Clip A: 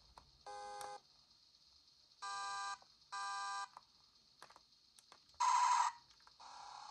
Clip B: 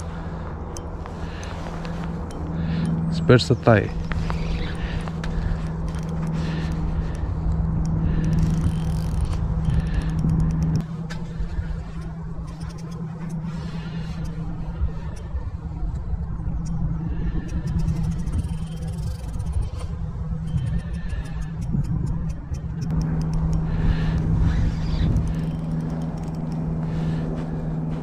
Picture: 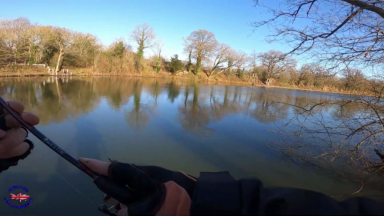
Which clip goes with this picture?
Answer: B